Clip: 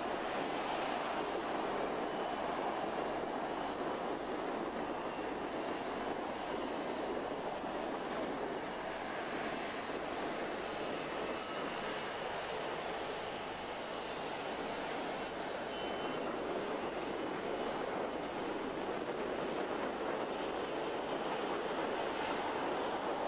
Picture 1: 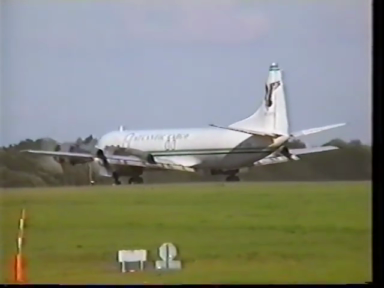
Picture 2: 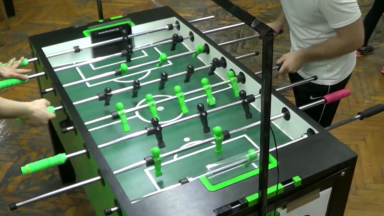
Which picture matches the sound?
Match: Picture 1